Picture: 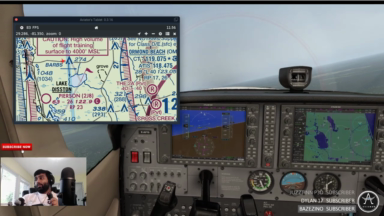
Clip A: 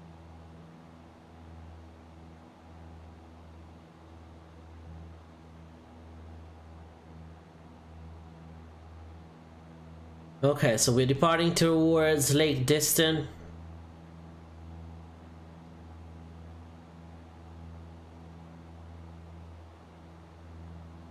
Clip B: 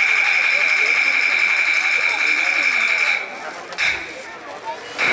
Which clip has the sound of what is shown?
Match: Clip A